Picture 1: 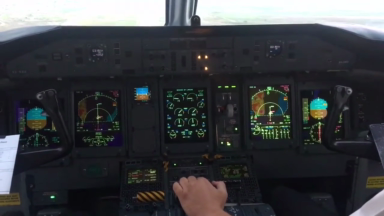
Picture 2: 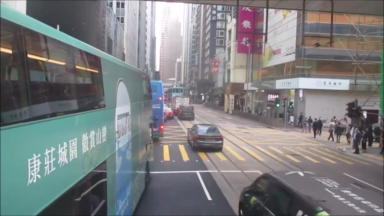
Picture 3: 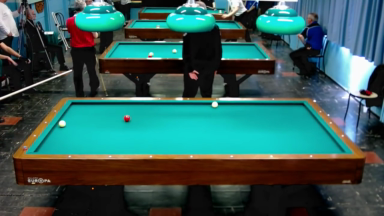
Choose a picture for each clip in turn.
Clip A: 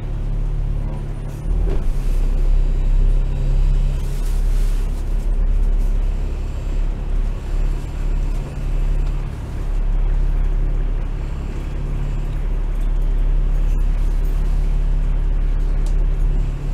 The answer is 2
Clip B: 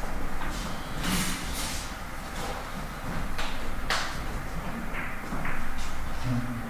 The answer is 3